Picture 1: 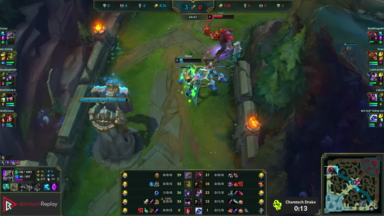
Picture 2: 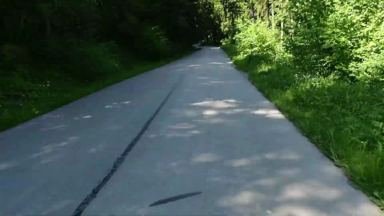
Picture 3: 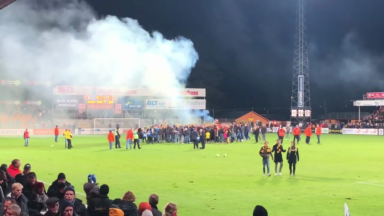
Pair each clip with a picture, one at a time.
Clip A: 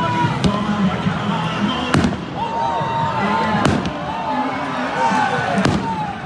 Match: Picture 3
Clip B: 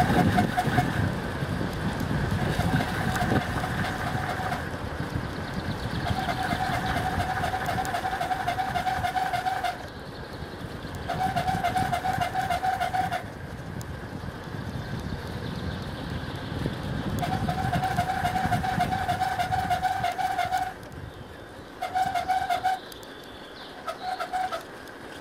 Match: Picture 2